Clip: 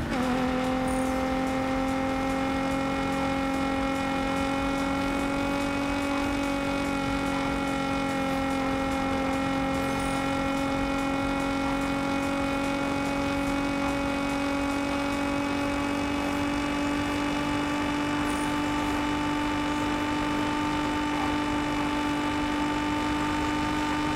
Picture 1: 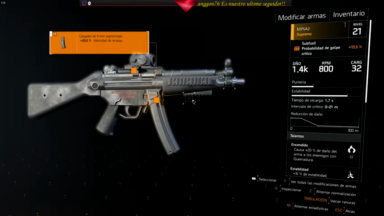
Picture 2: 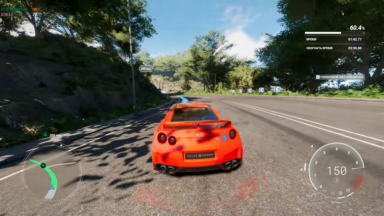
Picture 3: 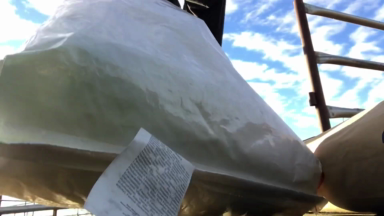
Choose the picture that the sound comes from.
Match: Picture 2